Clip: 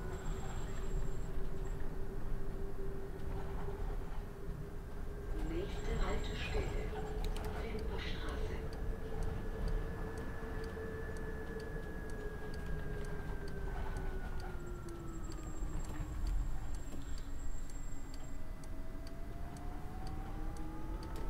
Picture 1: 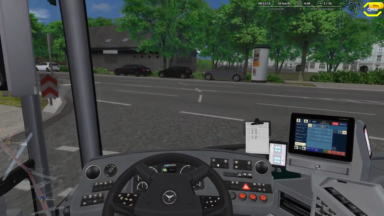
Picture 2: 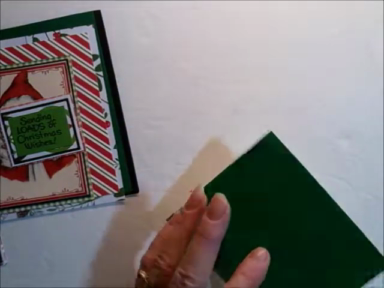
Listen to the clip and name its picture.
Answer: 1